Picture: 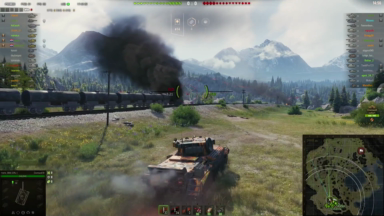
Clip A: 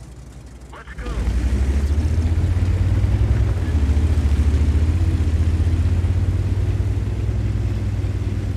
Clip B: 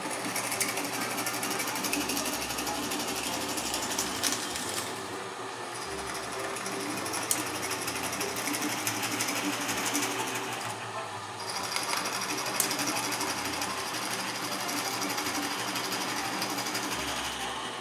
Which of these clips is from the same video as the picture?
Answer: A